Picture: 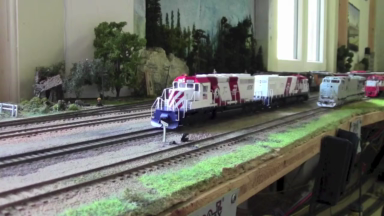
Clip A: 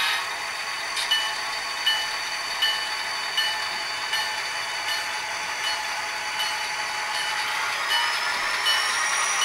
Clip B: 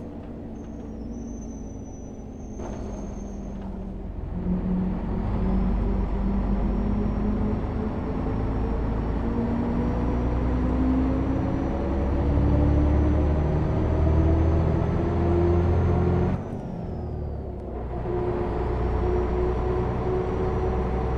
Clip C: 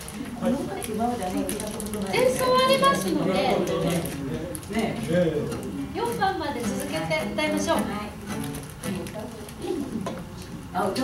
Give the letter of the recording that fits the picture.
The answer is A